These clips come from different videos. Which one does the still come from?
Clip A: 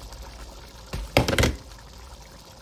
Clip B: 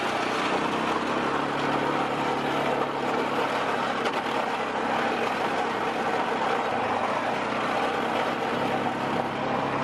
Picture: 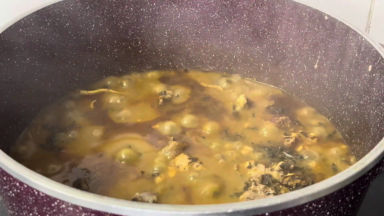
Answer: A